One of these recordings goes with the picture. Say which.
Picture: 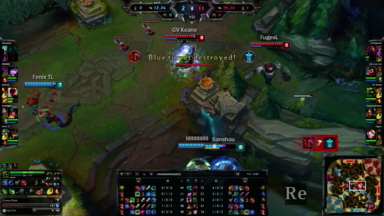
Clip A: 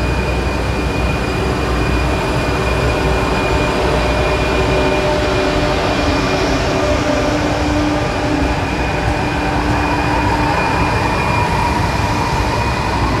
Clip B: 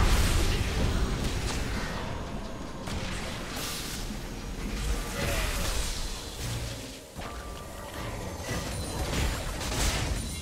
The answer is B